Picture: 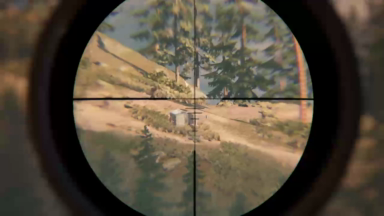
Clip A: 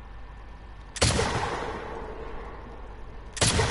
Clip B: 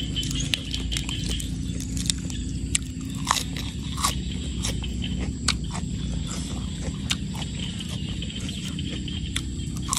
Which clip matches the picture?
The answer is A